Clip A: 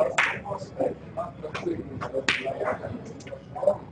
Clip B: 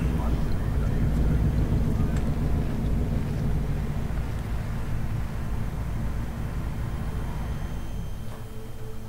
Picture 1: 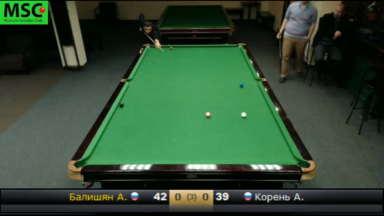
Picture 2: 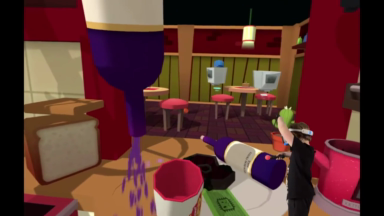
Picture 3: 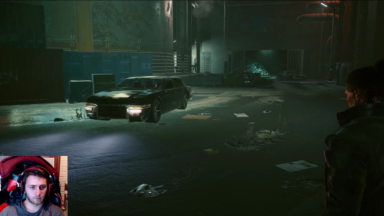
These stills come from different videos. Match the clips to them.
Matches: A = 1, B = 3